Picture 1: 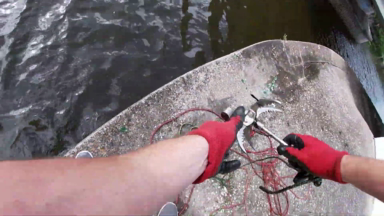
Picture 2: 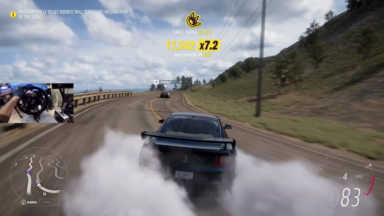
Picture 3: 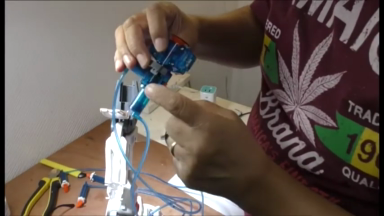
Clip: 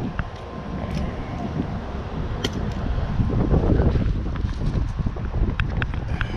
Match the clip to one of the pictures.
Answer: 1